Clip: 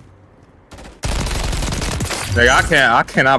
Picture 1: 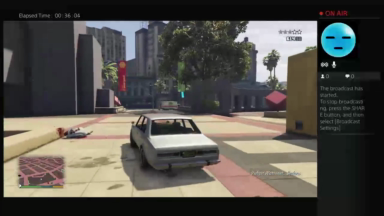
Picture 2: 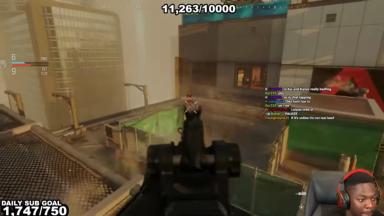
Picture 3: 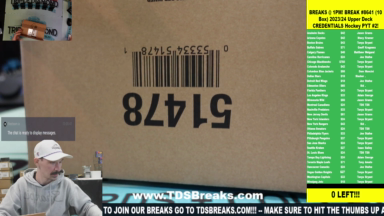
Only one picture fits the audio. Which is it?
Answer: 2